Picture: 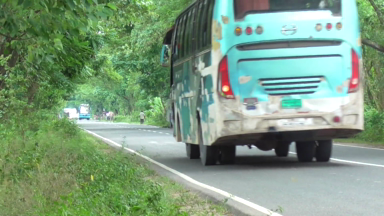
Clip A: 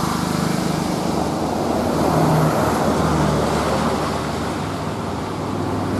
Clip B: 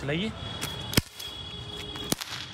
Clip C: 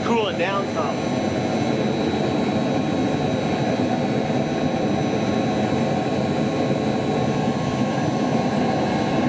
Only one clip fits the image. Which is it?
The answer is A